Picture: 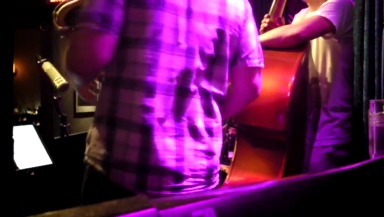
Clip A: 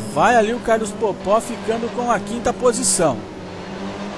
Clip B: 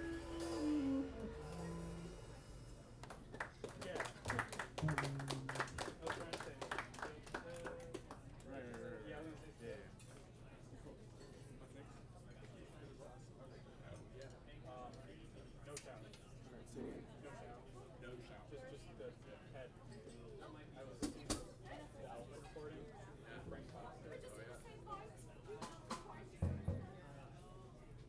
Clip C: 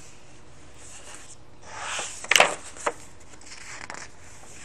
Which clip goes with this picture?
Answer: B